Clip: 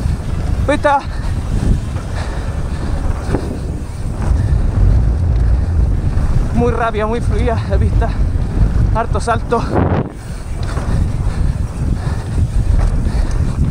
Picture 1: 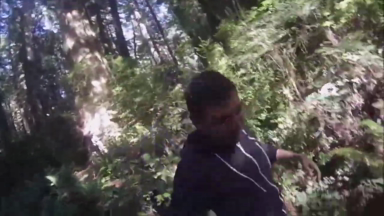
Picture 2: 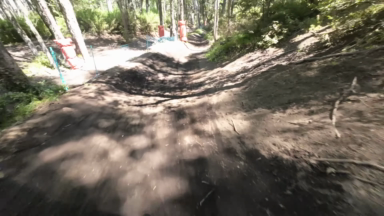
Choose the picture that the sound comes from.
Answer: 2